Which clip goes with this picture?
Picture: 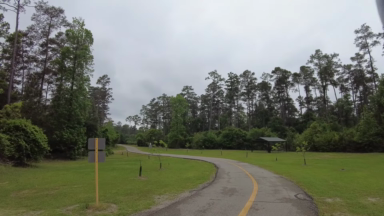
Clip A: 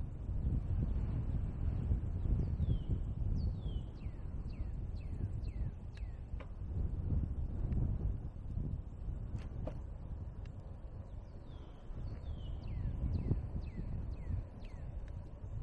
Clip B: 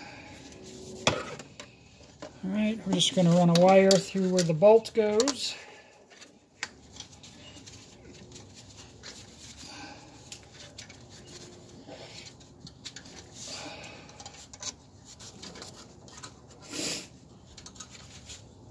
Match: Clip A